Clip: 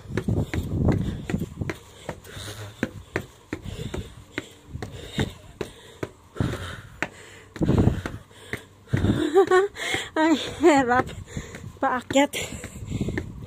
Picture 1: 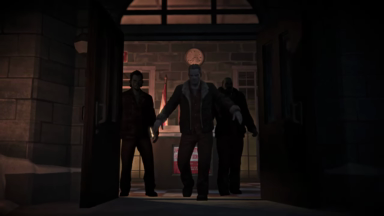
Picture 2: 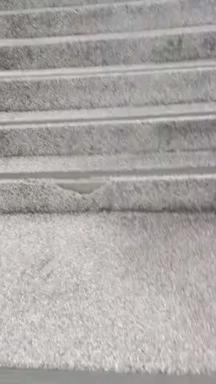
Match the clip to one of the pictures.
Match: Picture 2